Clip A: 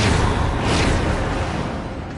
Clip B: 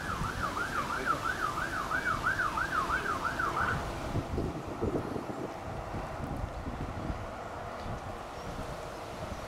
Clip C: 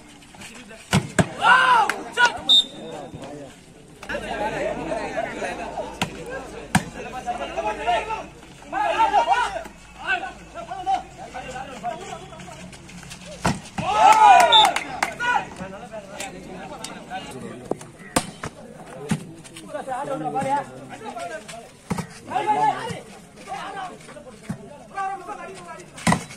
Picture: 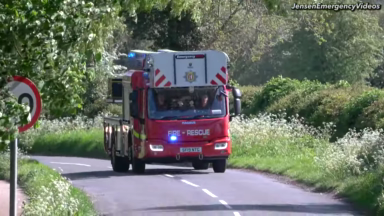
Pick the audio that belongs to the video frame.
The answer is B